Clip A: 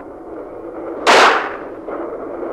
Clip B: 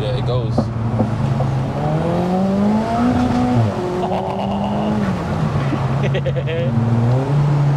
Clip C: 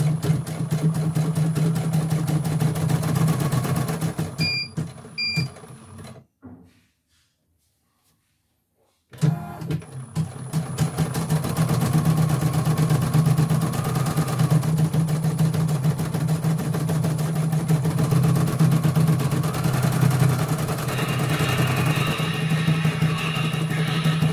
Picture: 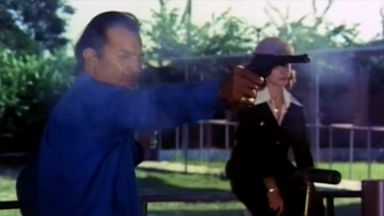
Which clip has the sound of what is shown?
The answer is A